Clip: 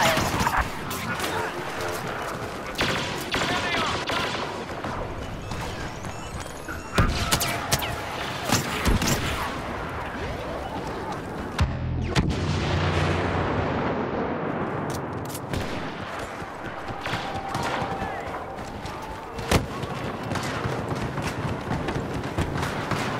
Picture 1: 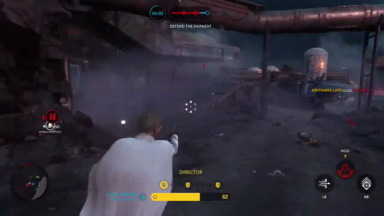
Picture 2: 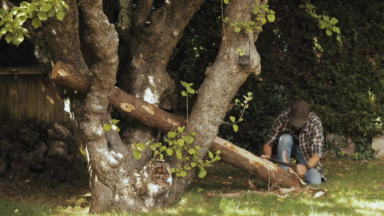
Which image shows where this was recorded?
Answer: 1